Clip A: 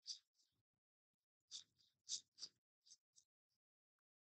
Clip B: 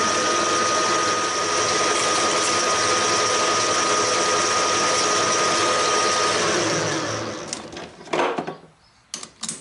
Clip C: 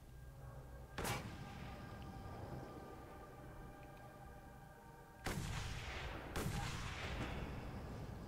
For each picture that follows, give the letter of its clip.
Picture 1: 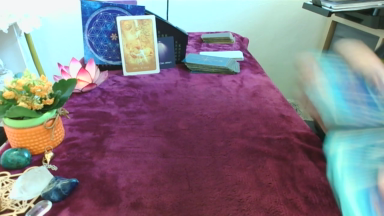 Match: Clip A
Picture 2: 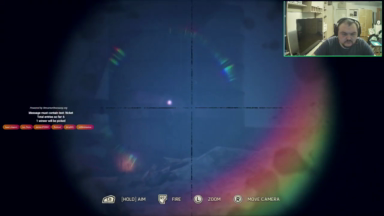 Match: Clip C